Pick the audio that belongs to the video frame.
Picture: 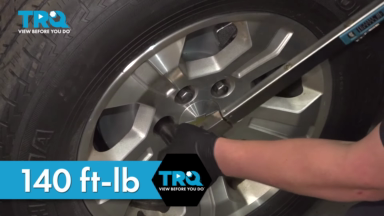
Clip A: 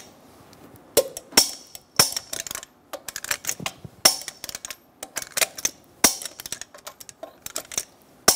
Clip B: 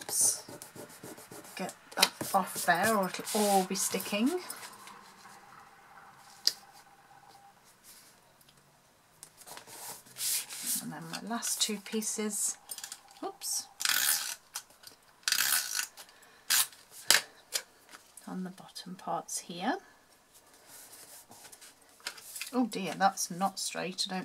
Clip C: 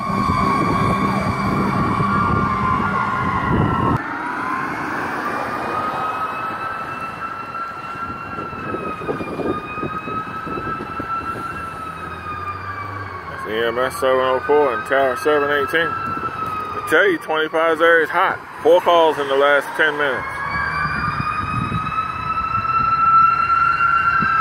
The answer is A